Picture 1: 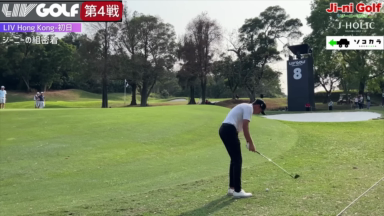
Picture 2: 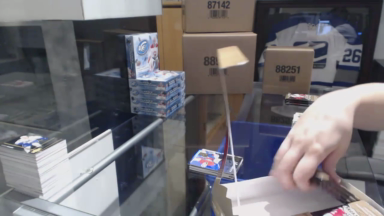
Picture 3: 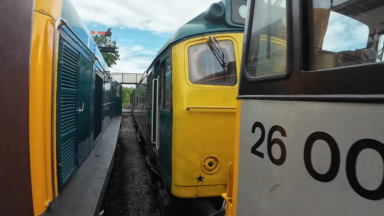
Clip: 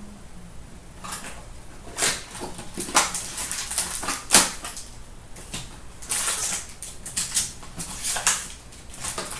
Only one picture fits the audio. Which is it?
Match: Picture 2